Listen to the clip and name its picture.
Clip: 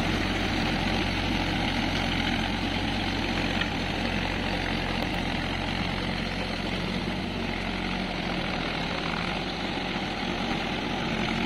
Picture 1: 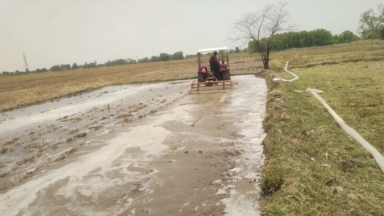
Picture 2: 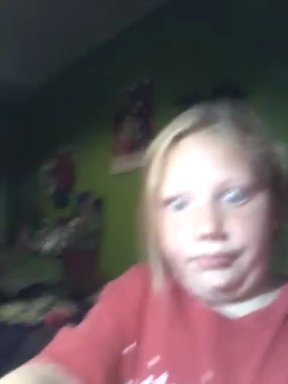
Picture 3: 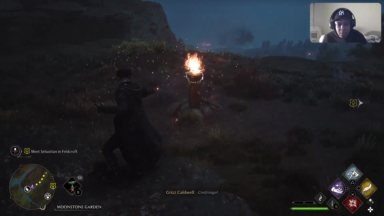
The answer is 1